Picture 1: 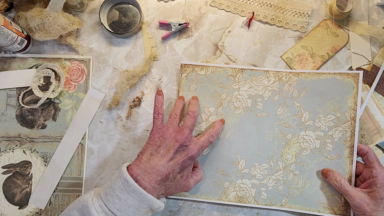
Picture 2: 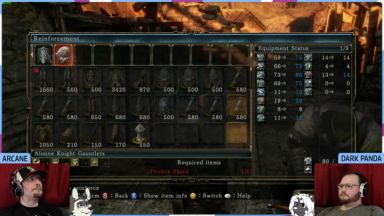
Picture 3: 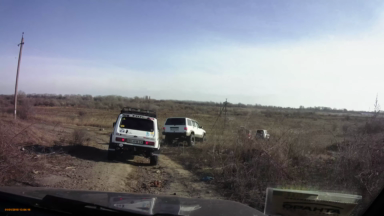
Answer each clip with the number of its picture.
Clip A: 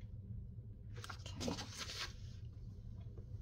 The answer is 1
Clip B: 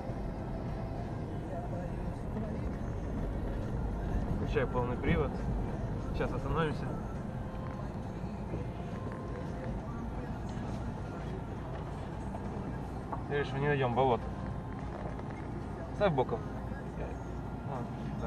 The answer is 3